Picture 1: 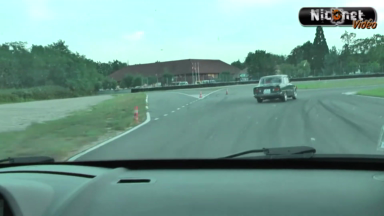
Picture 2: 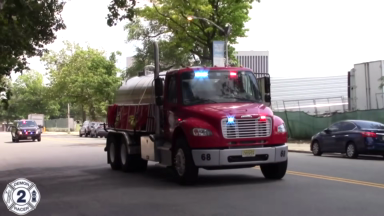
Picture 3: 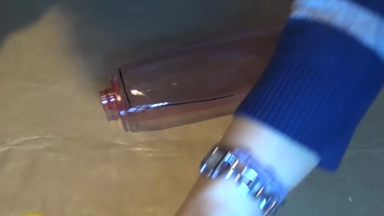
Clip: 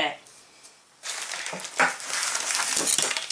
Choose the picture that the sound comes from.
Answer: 3